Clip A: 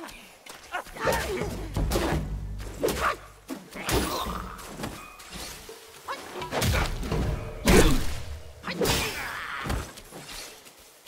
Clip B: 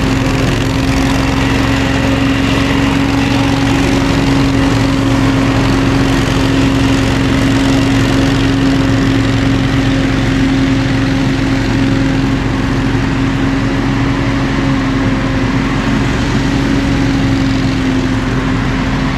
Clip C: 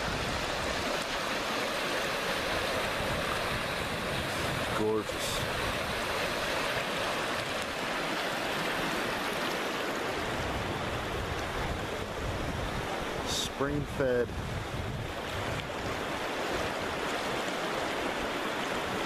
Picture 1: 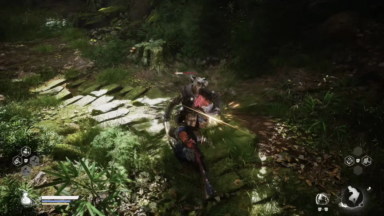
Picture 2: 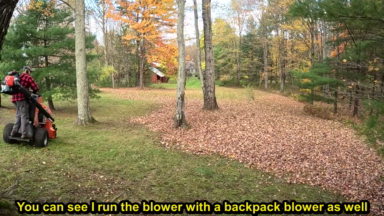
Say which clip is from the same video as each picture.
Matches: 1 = A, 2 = B